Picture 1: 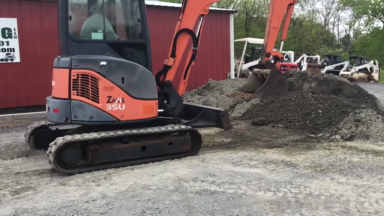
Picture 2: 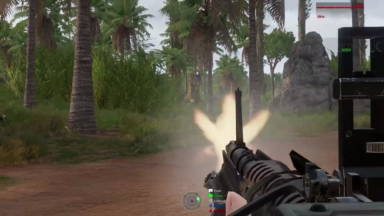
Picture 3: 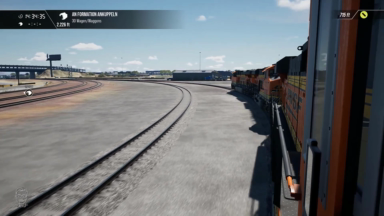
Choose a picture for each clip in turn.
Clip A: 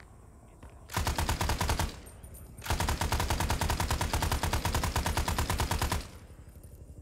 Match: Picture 2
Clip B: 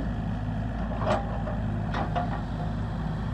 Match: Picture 1